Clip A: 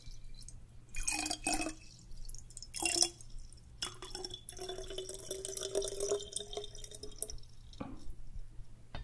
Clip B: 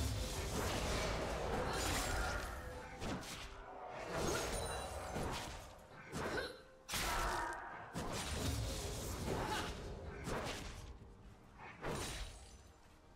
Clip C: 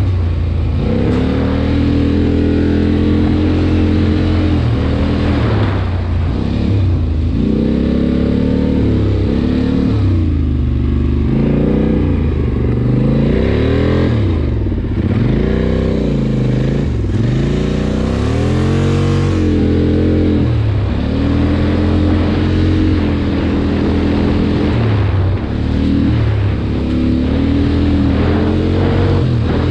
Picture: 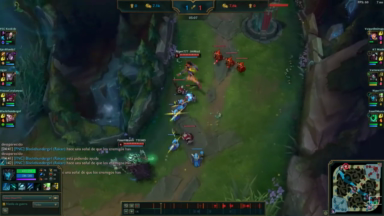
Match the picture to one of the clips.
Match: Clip B